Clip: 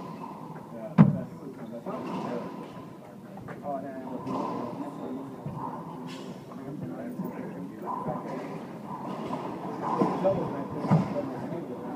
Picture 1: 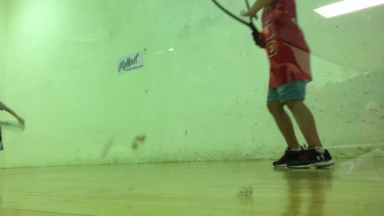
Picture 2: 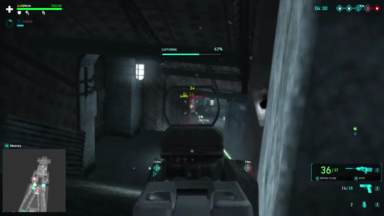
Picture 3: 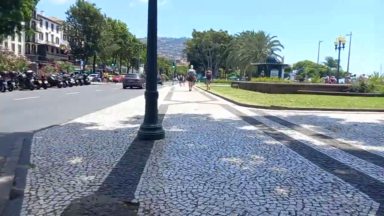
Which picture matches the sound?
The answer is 1